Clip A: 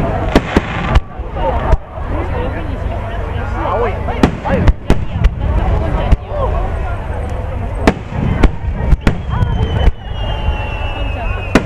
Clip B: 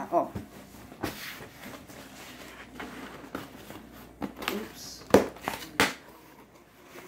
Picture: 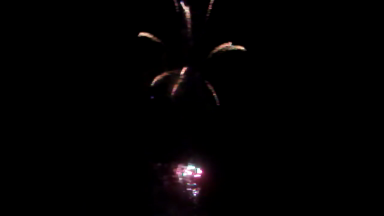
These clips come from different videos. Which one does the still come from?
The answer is A